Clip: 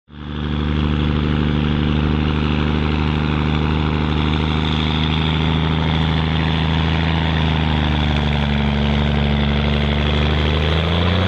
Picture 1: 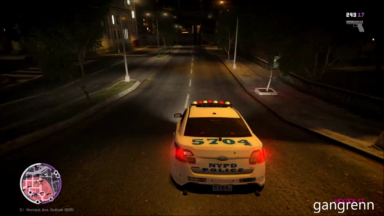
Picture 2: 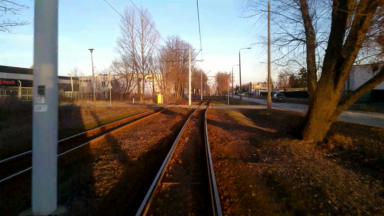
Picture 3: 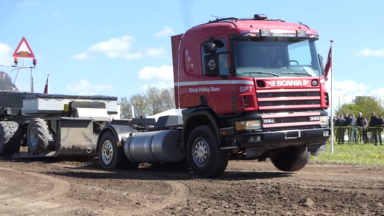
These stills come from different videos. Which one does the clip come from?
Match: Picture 3